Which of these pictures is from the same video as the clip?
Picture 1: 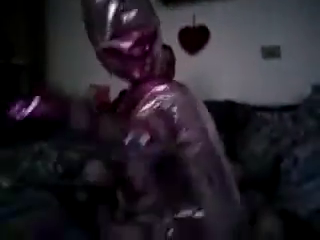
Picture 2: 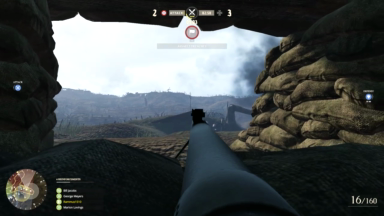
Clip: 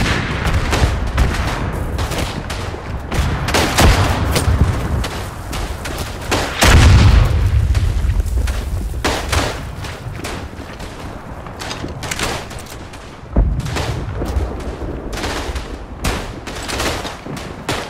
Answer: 2